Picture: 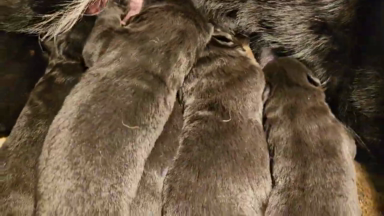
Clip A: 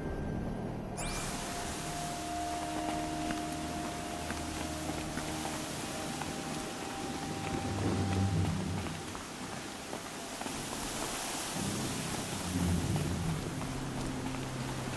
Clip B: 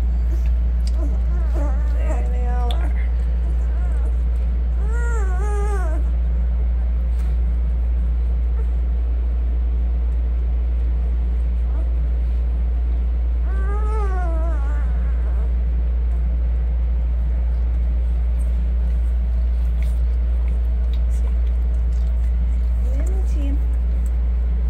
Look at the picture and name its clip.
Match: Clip B